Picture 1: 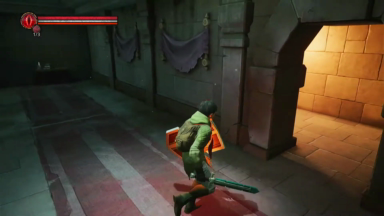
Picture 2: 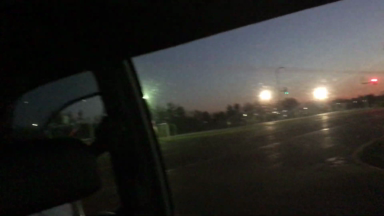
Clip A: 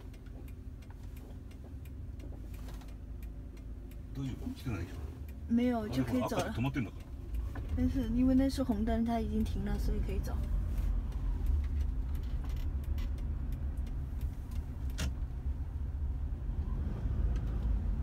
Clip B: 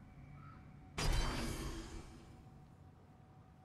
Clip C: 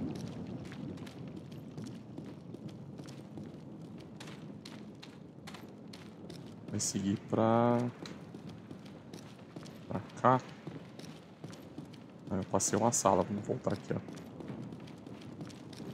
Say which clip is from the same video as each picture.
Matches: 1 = C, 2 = A